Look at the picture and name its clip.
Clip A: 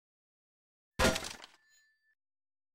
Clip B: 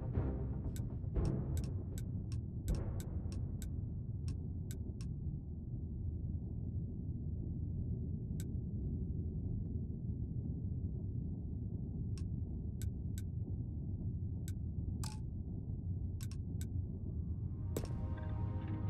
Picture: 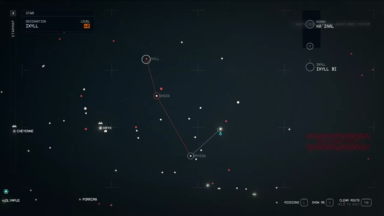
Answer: B